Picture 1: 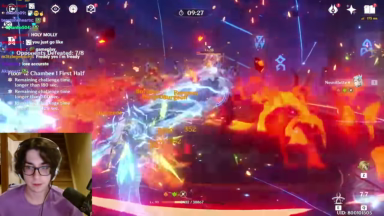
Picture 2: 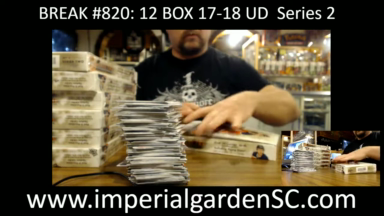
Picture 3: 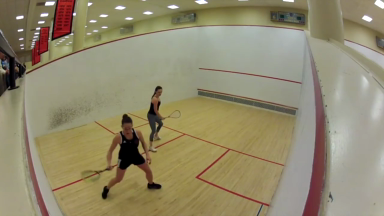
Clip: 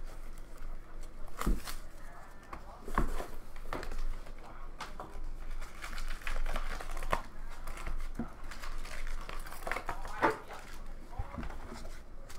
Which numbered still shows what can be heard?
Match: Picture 2